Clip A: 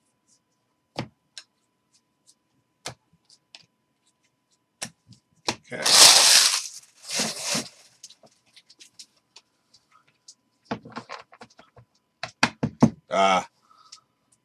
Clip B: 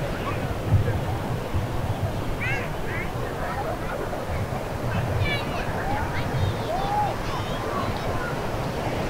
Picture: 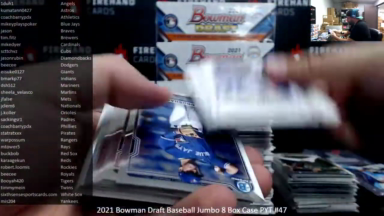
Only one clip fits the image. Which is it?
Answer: A